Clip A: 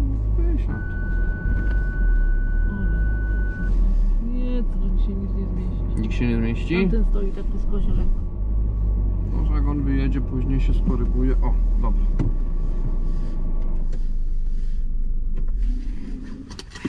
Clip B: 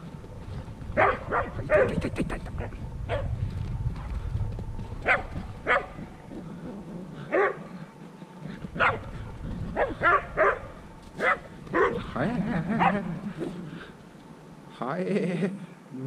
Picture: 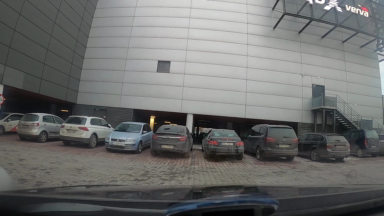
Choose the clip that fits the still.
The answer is A